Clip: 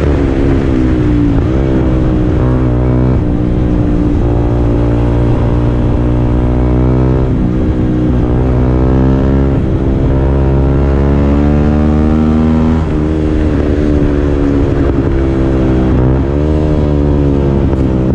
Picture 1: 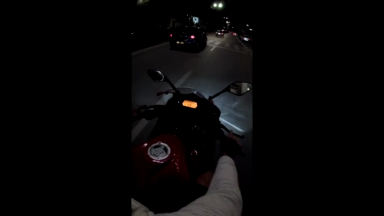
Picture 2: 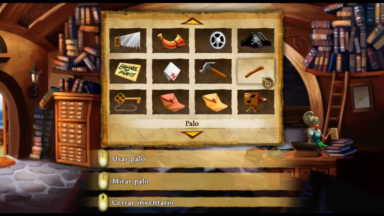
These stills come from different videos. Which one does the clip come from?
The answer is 1